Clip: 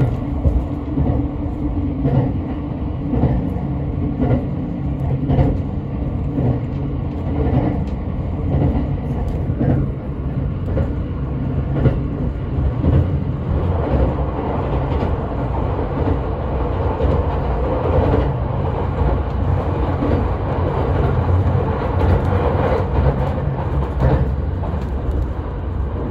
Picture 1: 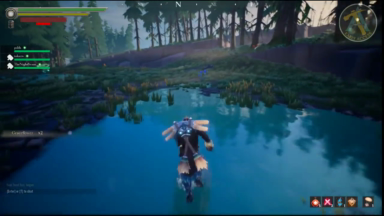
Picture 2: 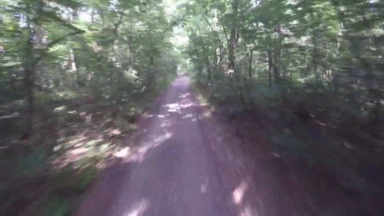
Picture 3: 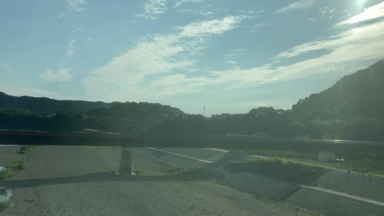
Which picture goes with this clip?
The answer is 3